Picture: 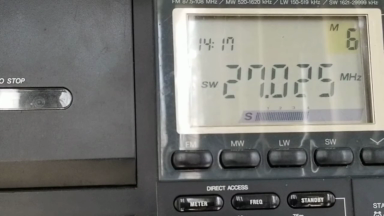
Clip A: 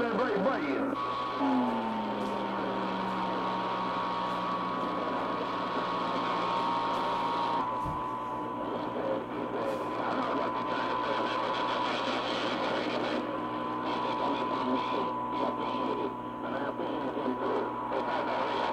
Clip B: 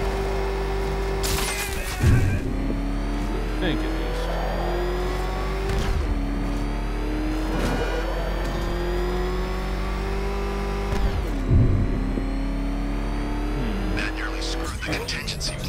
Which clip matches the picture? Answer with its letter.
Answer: A